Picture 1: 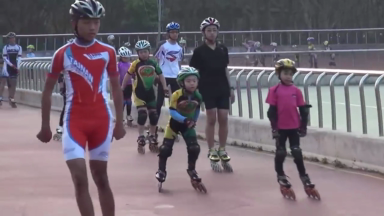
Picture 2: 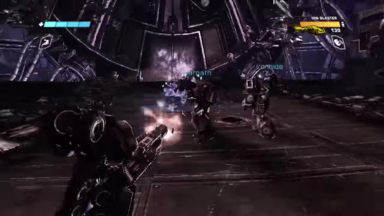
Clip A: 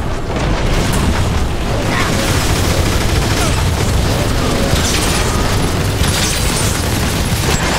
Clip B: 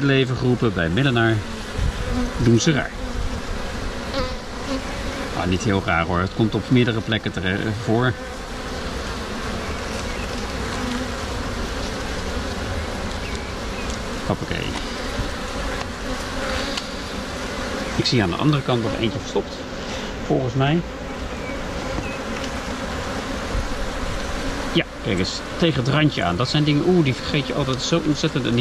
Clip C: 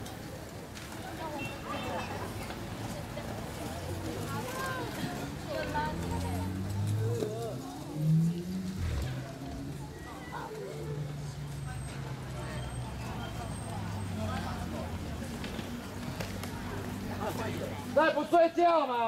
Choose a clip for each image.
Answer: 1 C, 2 A